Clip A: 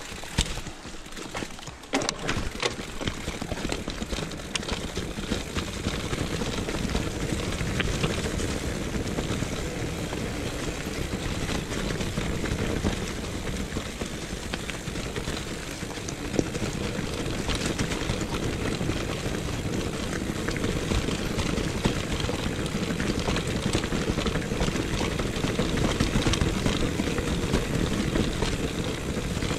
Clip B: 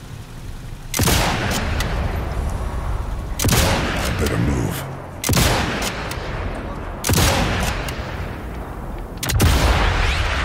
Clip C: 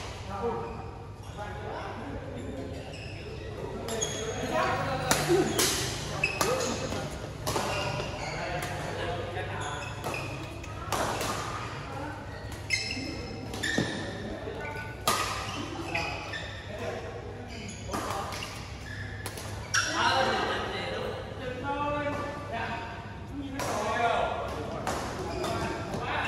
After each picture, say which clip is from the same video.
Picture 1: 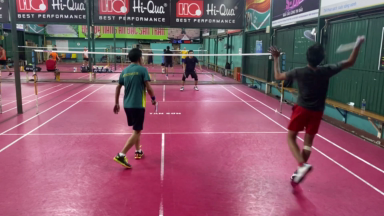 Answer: C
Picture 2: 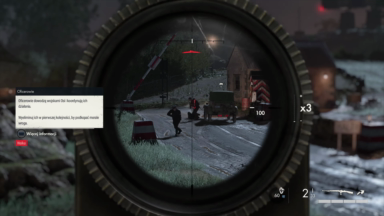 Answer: B